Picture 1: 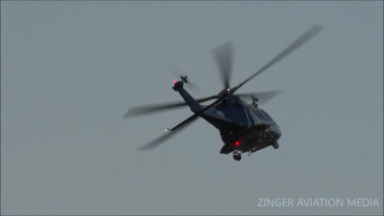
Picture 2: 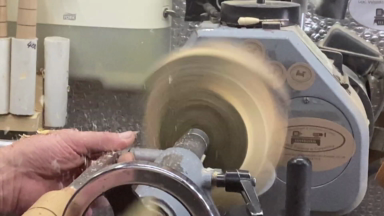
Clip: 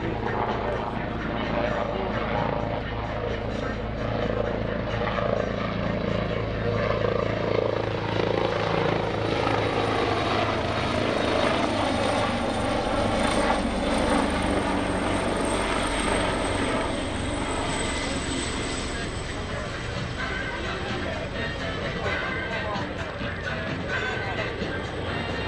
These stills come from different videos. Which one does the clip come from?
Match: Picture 1